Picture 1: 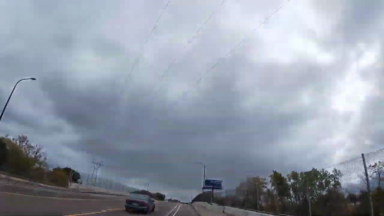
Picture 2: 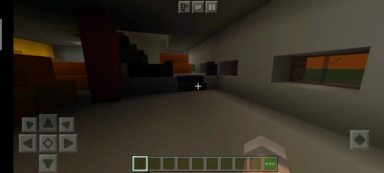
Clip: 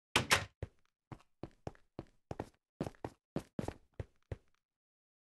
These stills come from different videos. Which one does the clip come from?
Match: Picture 2